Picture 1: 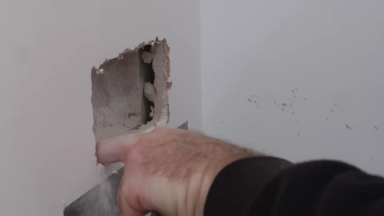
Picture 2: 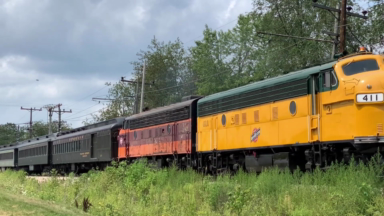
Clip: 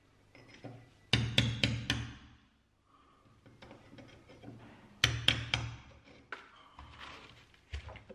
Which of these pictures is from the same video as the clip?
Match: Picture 1